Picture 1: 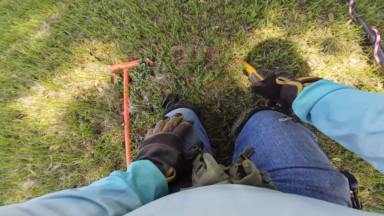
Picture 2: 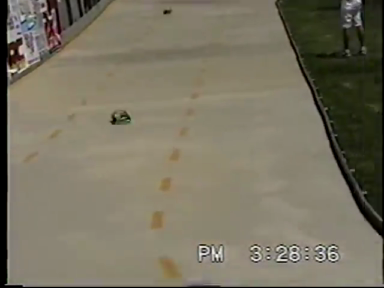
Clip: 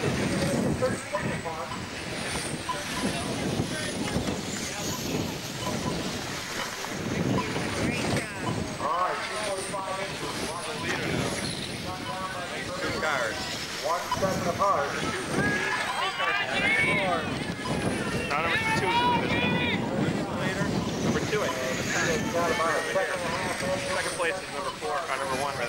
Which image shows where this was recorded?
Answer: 2